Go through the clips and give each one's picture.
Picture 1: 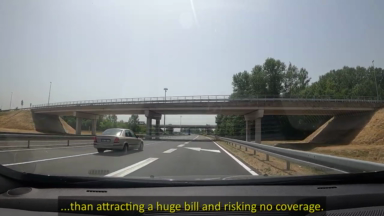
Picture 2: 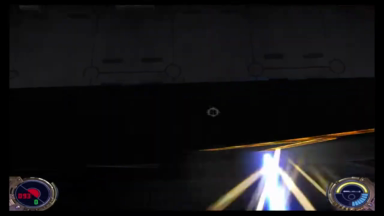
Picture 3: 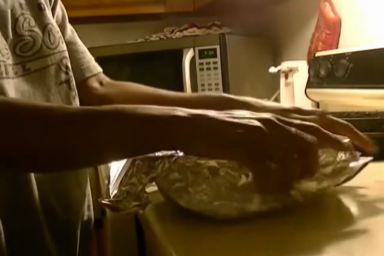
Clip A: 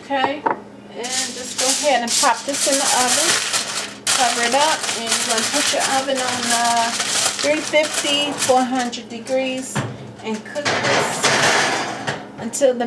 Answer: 3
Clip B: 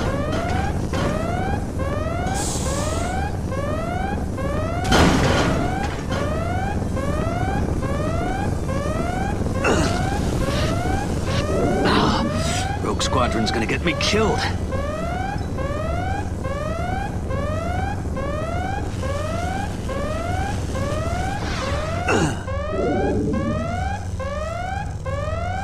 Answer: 2